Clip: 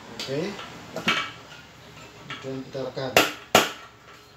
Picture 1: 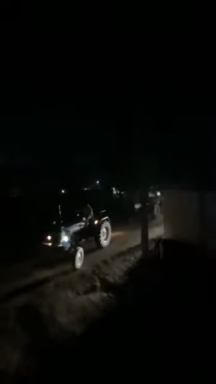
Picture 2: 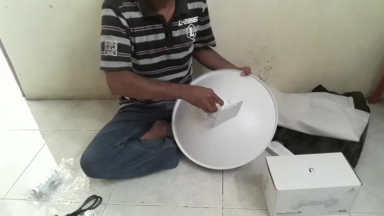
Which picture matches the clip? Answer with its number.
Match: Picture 2